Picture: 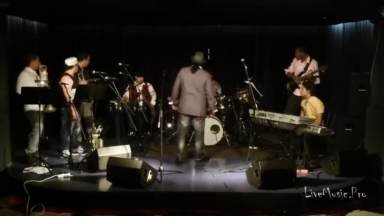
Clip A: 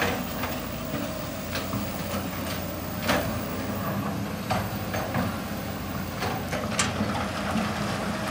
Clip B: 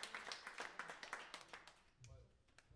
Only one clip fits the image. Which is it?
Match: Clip B